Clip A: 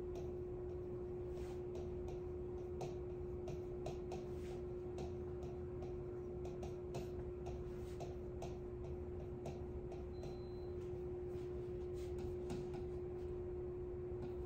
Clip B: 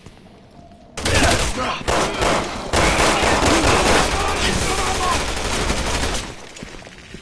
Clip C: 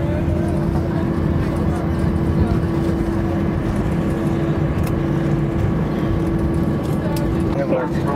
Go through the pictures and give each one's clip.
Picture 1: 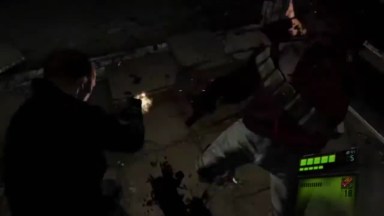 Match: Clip B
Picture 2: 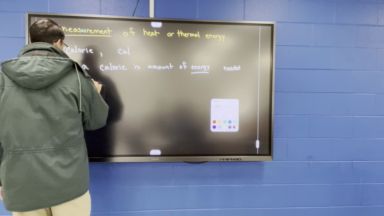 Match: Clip A